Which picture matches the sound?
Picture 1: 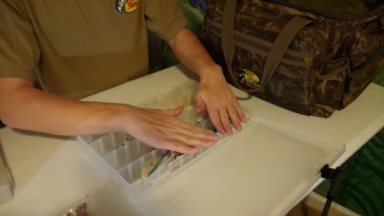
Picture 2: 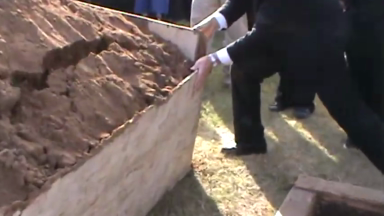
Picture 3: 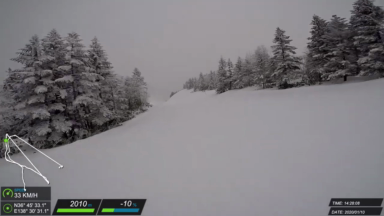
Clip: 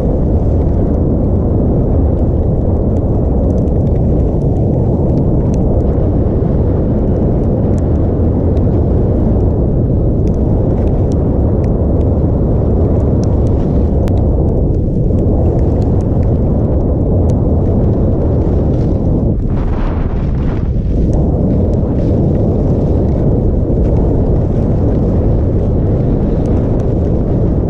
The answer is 3